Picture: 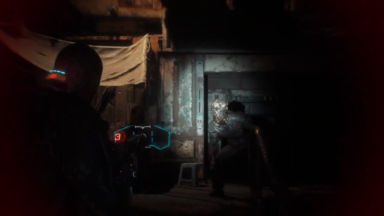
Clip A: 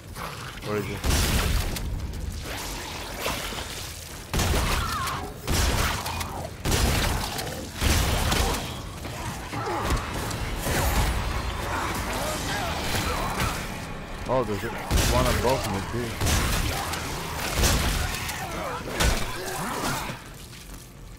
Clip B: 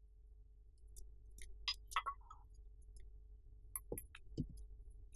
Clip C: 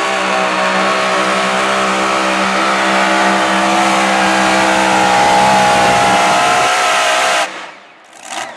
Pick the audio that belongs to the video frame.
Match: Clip A